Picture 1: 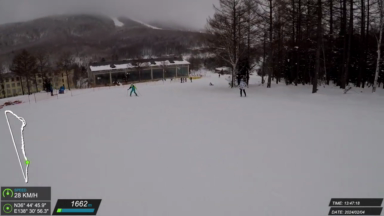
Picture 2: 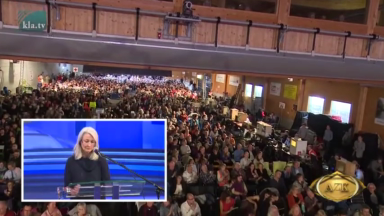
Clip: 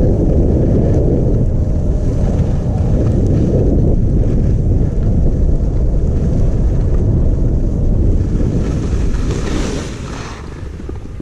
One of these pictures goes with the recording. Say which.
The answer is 1